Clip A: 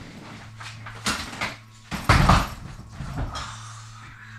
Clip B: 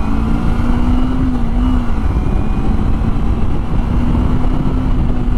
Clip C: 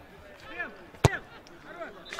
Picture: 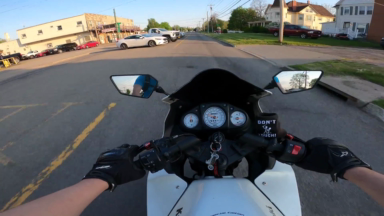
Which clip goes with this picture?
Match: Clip B